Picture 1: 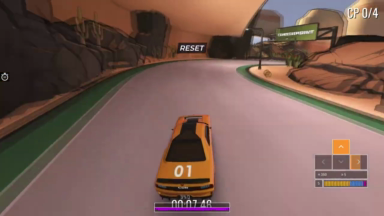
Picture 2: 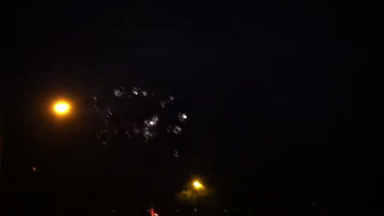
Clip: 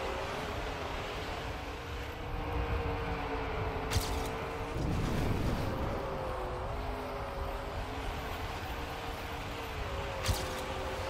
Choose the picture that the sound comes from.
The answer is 1